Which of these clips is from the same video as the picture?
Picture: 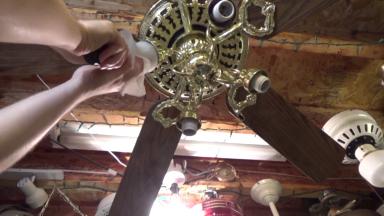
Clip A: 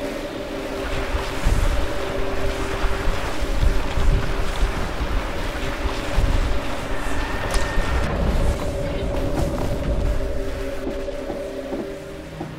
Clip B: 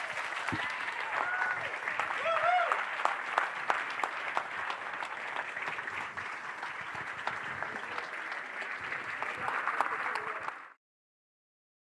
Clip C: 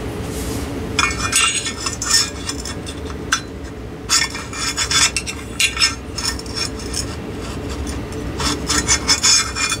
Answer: C